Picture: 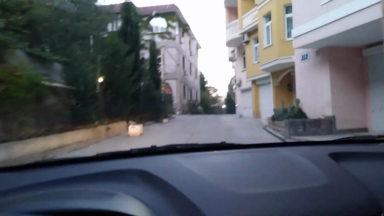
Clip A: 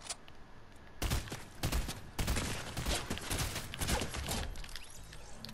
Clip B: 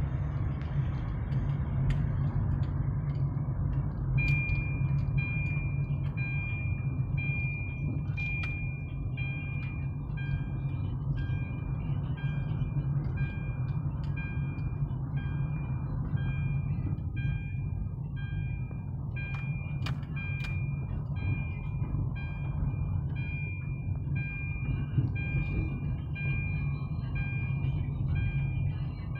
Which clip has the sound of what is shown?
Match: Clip B